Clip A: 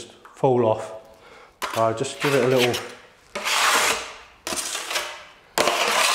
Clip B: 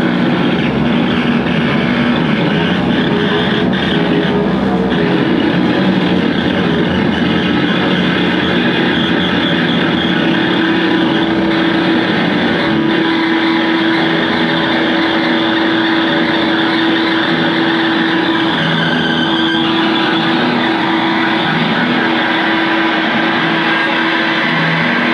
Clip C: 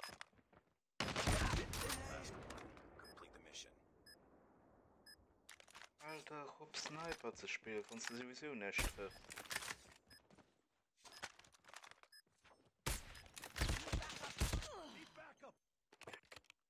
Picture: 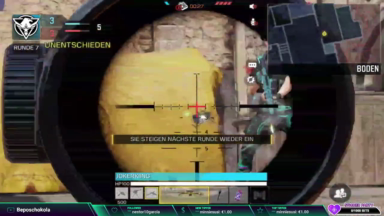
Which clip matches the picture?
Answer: C